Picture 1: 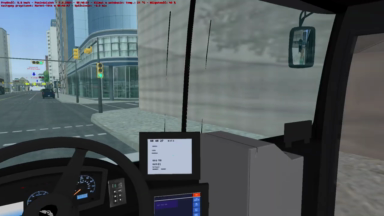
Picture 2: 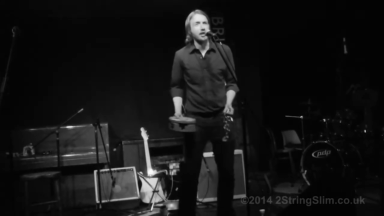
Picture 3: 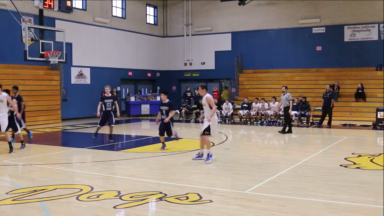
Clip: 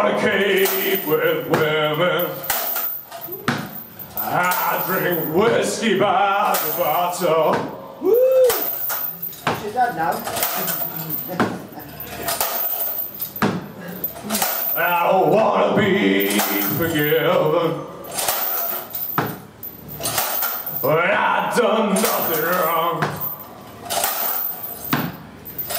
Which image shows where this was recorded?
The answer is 2